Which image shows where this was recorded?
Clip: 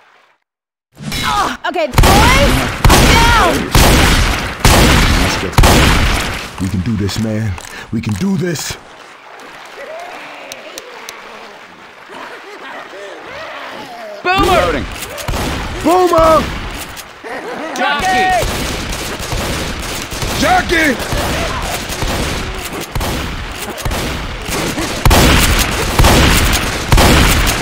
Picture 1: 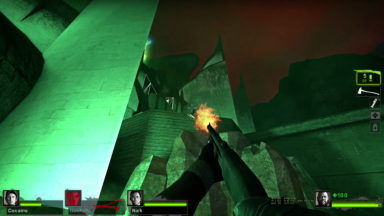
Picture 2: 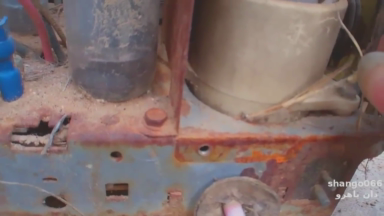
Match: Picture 1